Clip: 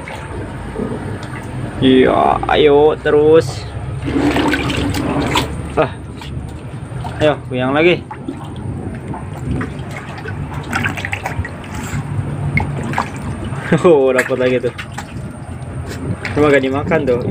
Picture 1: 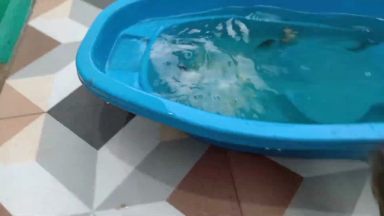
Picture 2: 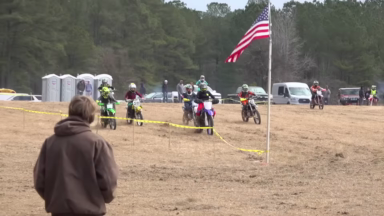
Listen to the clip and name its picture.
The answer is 1